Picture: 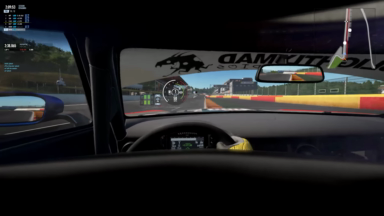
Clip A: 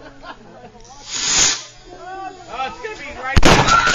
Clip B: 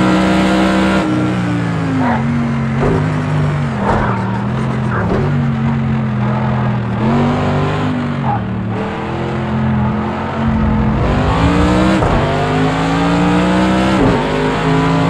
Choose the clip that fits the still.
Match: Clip B